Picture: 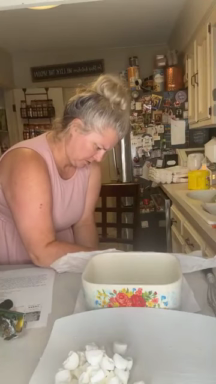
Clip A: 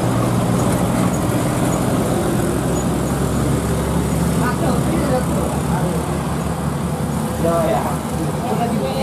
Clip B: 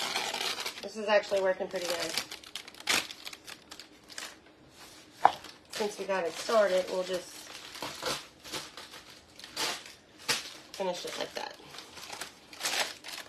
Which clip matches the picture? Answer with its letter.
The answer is B